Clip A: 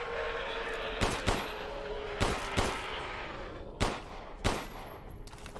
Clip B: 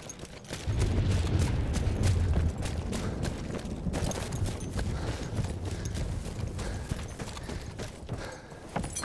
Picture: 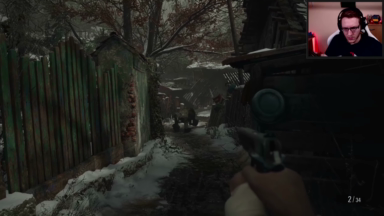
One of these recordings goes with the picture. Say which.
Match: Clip A